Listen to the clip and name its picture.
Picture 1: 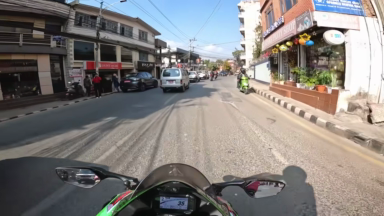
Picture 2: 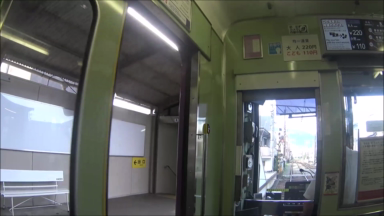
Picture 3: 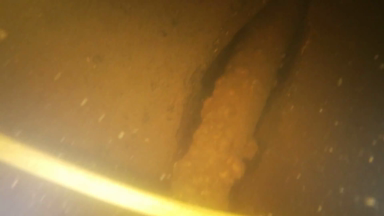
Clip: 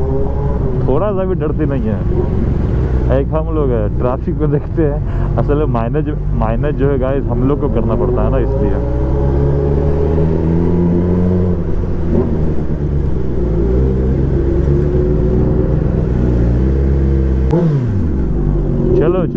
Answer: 1